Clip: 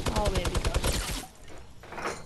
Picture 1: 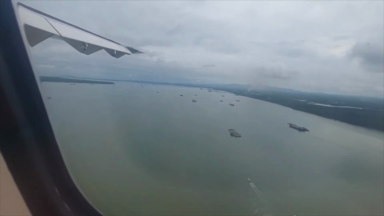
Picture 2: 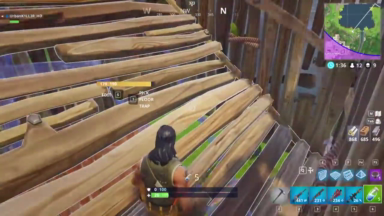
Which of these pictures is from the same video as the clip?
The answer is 2